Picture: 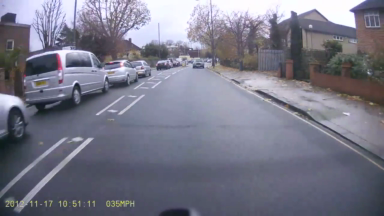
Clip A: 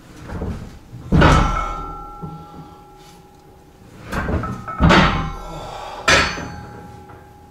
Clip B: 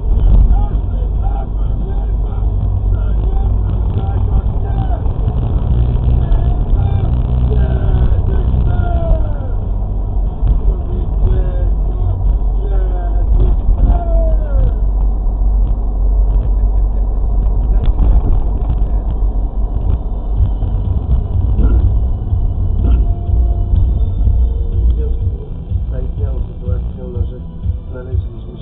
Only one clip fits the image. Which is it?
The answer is B